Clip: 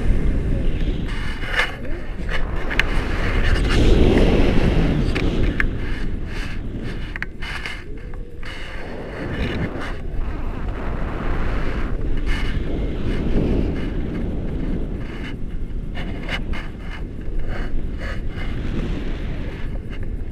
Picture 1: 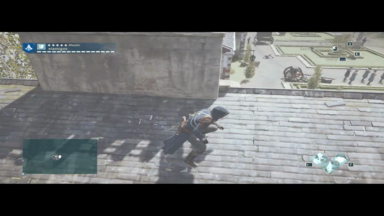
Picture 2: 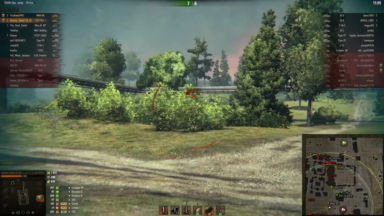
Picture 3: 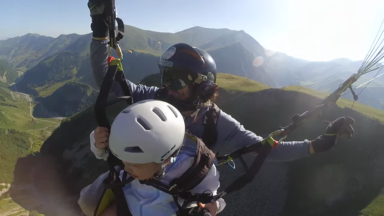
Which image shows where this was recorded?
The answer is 3